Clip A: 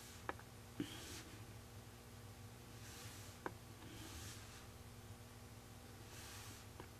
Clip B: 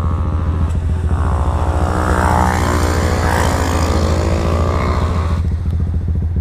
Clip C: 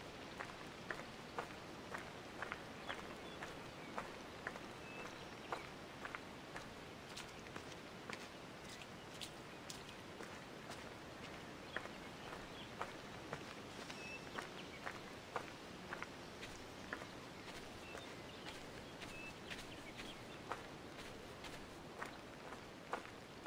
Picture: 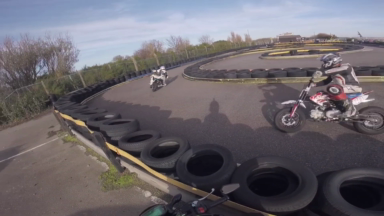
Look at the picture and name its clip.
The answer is B